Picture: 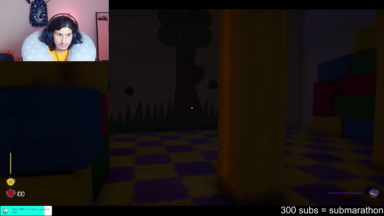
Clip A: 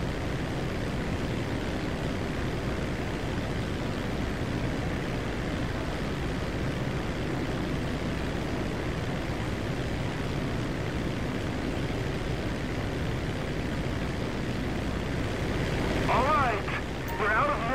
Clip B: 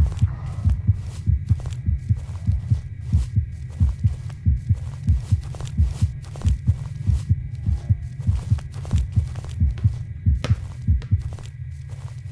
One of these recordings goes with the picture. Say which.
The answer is B